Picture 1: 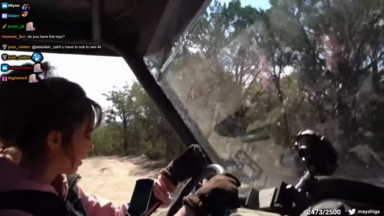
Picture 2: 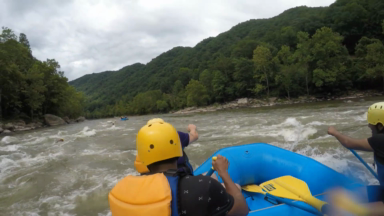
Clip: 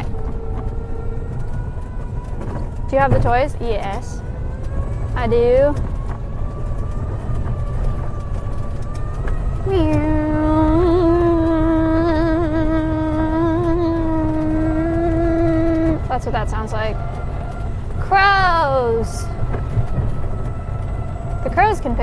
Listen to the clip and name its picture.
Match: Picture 1